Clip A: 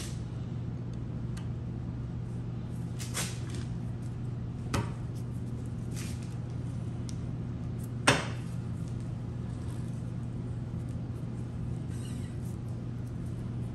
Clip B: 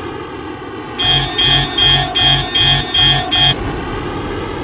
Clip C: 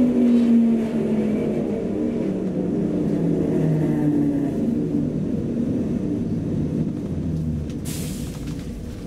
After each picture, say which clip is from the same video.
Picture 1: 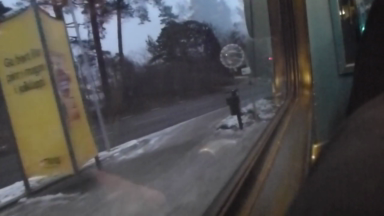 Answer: C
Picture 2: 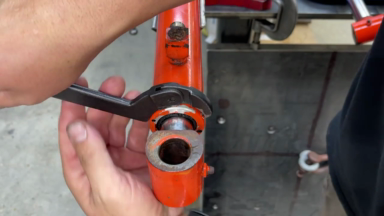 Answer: A